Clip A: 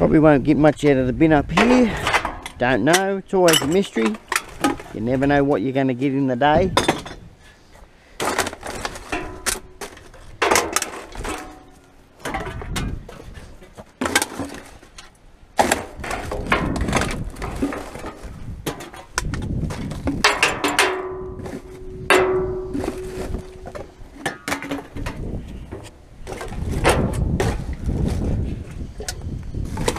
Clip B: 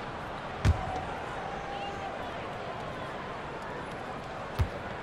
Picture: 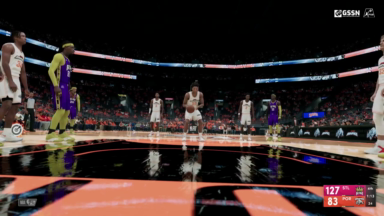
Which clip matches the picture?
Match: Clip B